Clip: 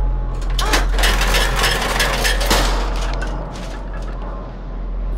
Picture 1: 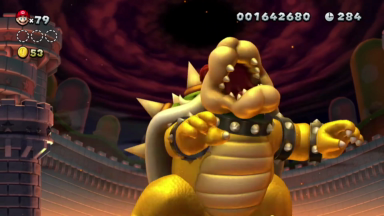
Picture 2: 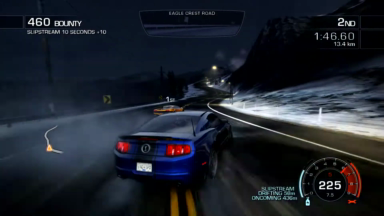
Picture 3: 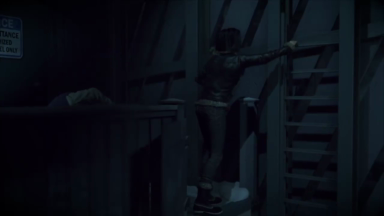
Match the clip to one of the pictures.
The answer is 3